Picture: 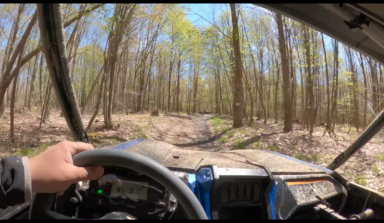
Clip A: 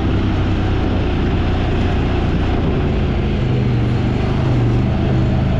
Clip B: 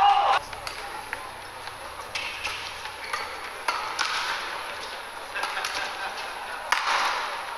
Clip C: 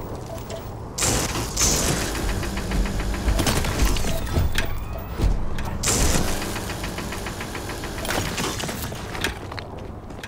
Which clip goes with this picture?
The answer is A